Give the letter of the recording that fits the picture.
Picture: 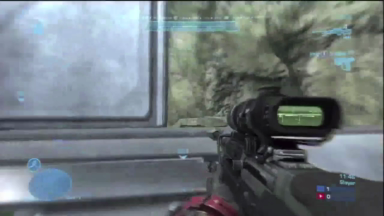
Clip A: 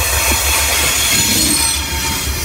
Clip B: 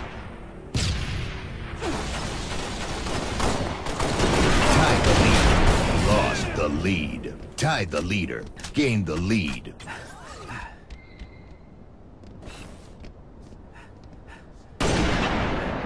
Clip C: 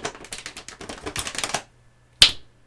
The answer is B